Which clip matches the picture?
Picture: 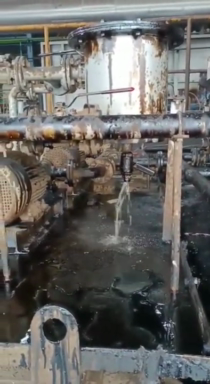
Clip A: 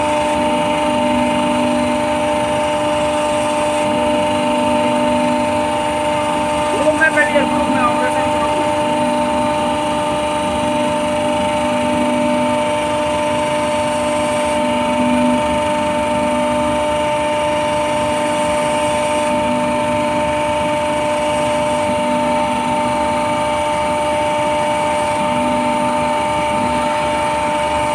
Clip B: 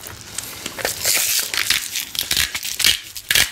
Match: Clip A